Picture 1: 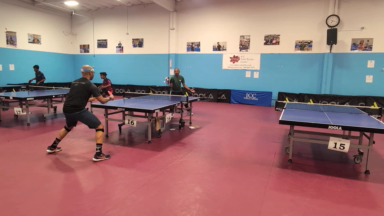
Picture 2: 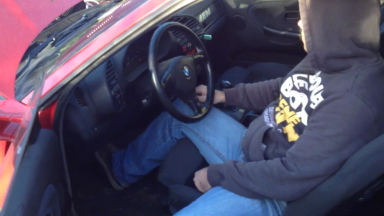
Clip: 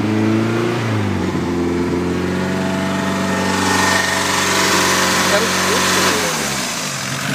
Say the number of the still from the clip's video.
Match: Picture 2